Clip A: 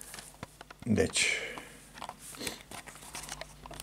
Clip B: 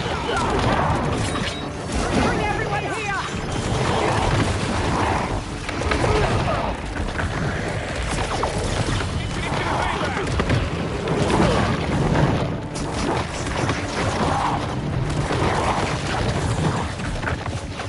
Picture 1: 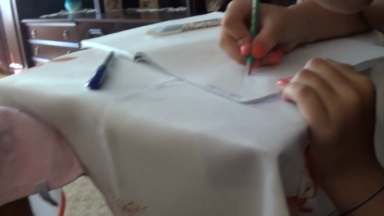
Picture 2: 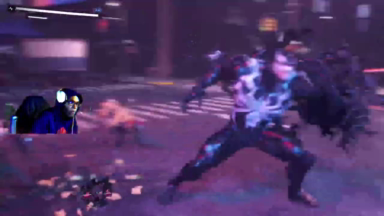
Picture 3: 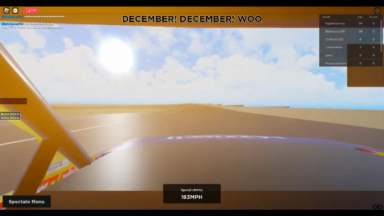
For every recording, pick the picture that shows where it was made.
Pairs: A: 1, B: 2